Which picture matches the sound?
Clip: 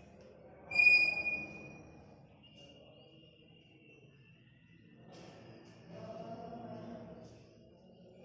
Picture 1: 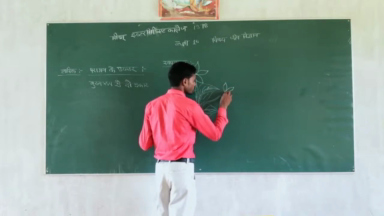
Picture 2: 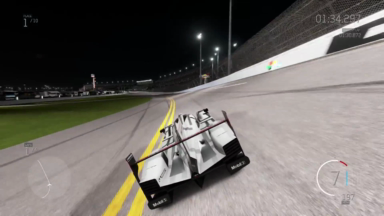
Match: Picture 1